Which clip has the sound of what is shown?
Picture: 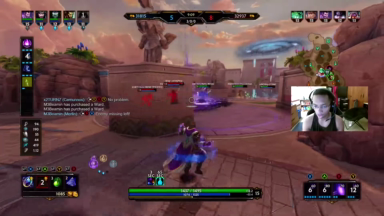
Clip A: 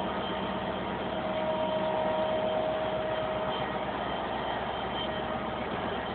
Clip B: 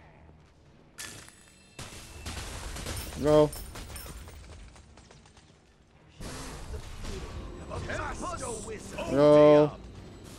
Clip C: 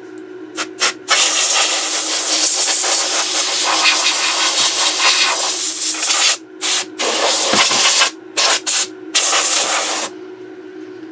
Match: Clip B